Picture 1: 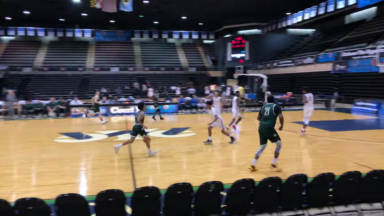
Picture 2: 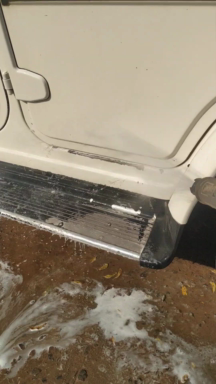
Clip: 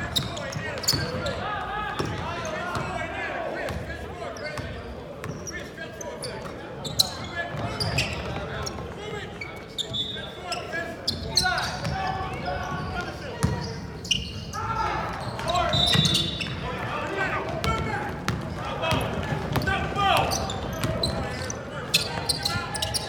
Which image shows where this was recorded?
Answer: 1